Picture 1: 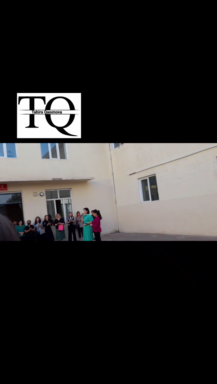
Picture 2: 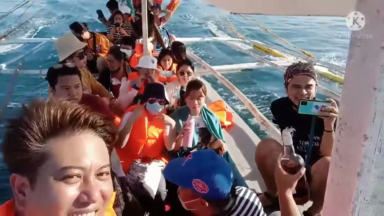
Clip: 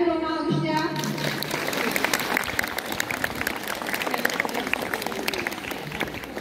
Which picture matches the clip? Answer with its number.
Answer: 1